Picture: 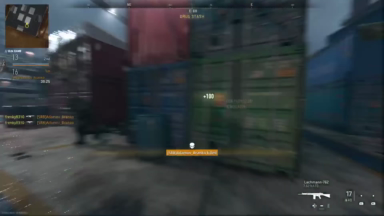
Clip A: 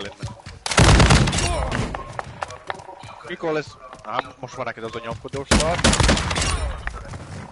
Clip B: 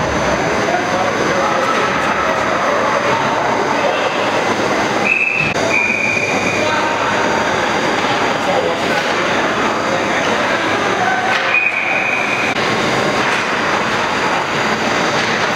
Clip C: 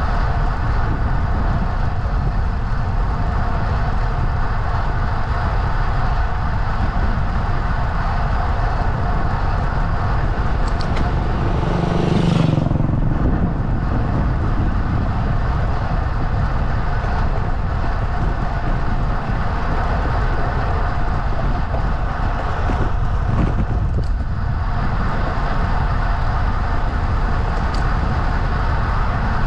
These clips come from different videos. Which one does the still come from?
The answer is A